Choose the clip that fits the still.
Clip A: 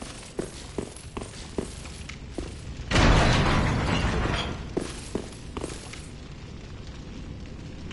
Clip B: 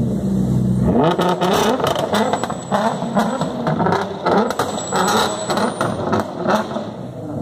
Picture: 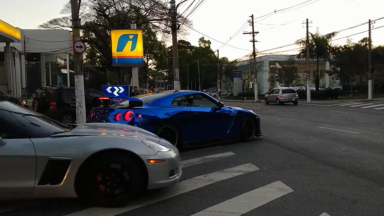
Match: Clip B